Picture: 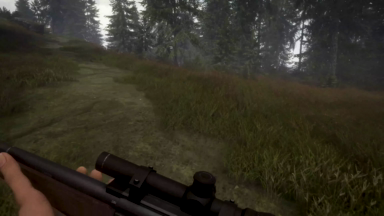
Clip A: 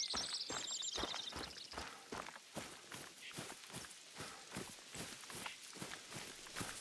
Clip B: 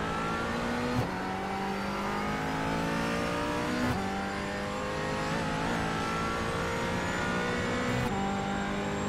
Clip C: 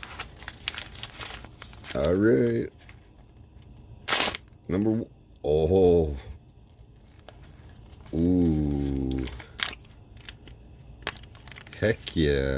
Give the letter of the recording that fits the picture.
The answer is A